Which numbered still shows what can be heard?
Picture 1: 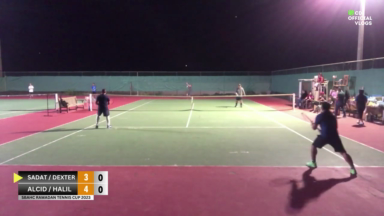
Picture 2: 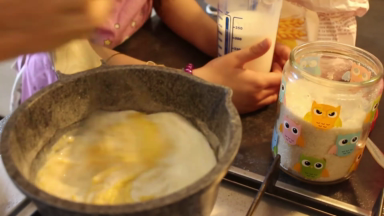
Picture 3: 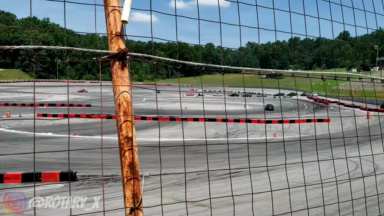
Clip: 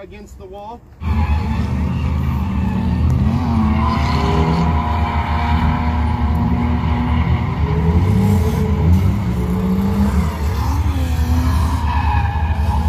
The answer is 3